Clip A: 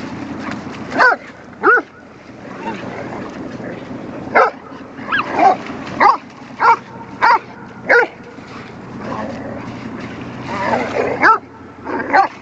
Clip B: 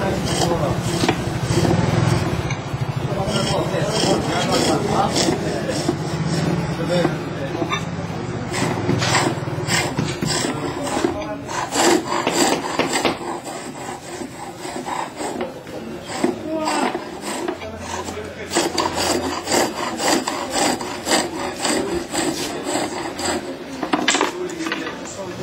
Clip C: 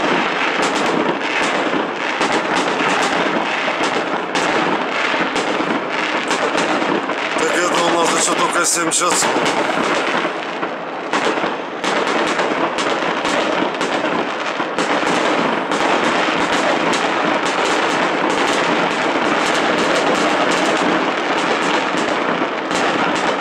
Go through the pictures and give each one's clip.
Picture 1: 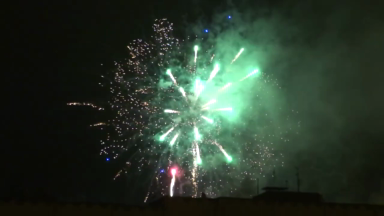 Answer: C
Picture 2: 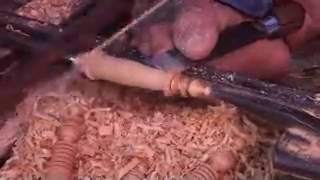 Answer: B